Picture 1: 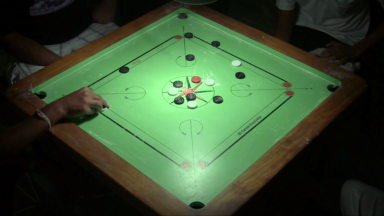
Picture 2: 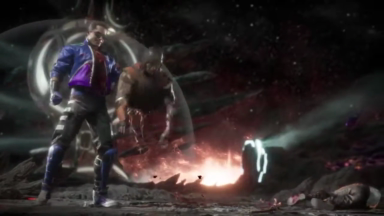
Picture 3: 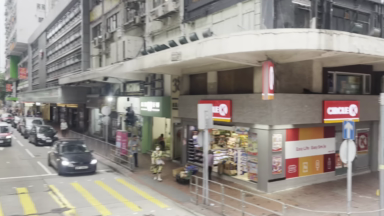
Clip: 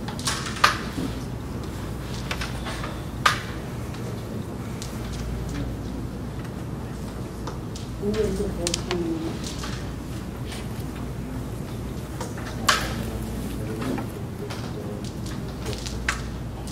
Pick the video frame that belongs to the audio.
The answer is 1